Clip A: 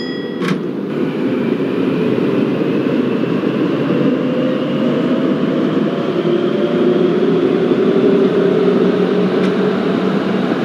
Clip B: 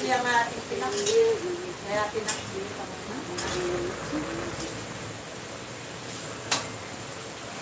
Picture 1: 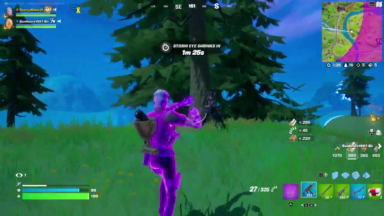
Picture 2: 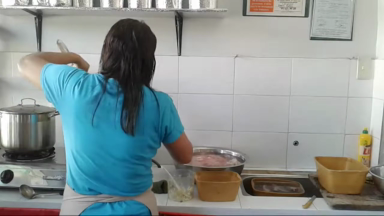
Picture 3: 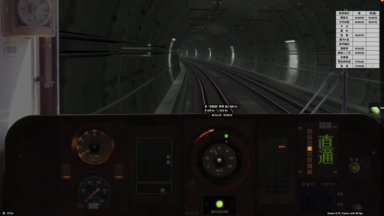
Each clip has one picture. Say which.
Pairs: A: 3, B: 2